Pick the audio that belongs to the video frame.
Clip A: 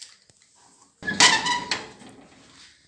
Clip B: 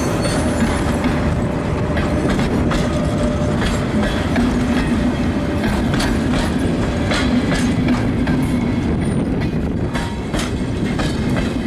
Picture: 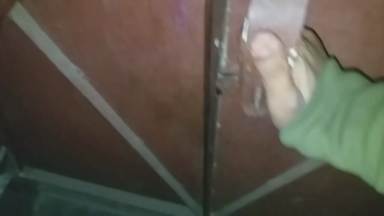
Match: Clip A